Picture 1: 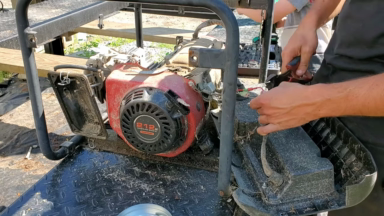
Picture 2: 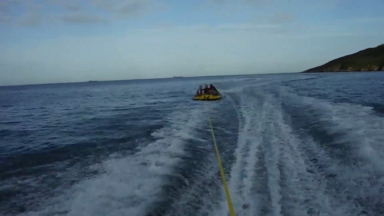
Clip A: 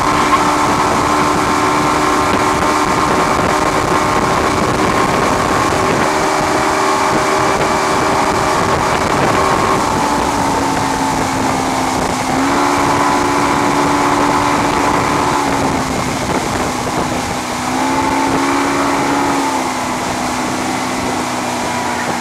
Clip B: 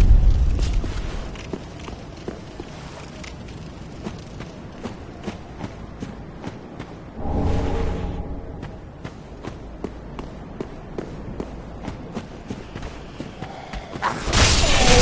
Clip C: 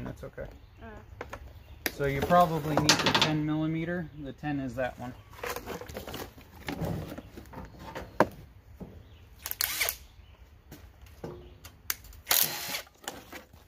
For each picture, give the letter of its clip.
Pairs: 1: C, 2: A